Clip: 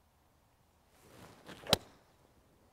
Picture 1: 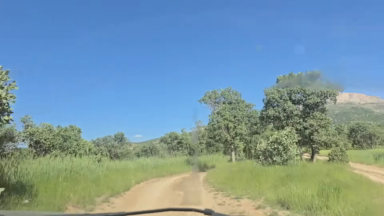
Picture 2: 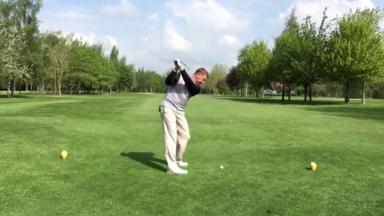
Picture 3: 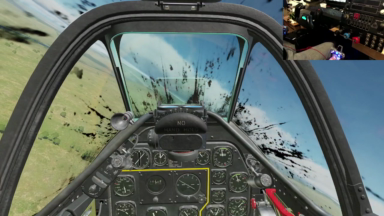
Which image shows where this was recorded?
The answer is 2